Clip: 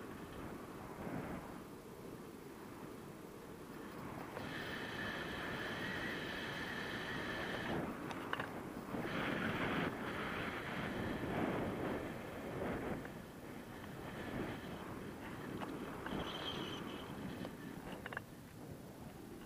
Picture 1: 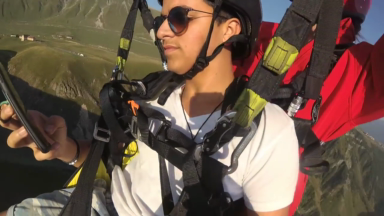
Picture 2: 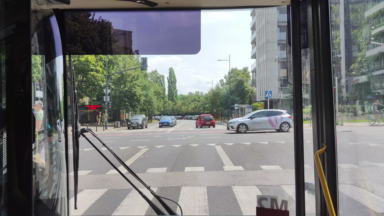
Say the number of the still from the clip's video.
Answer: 1